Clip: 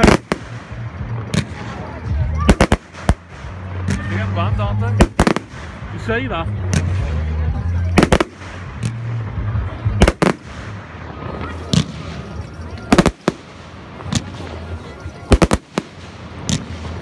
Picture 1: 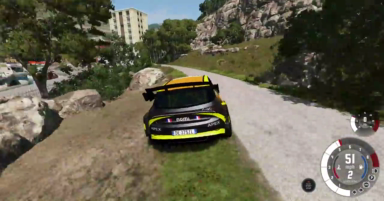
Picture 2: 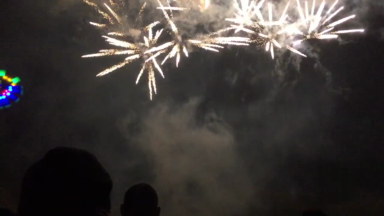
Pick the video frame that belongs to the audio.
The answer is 2